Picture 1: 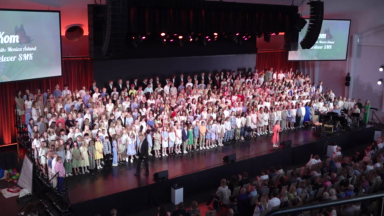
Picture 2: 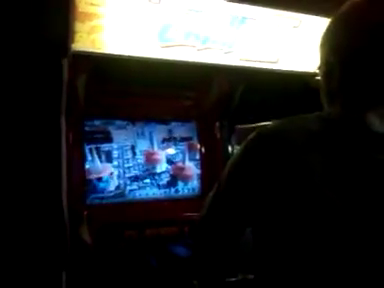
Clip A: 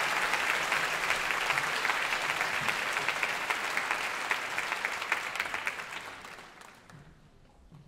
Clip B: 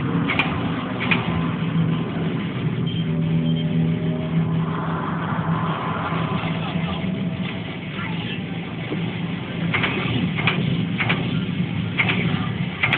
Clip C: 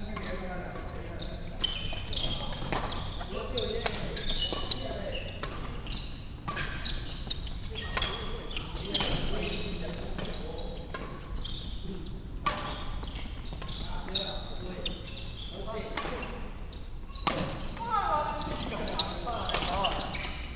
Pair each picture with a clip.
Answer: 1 A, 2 B